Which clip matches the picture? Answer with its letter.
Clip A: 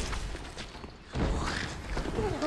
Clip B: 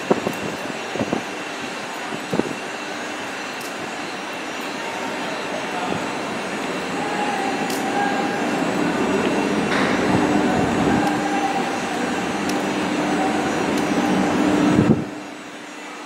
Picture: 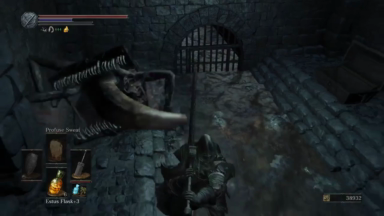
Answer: A